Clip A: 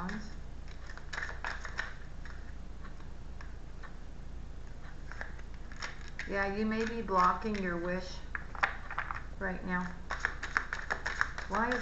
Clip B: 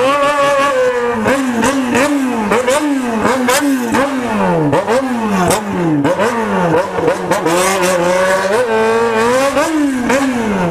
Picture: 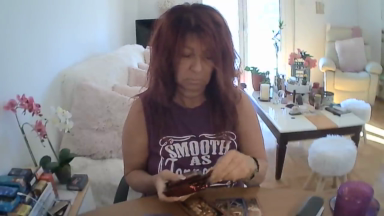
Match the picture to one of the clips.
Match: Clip A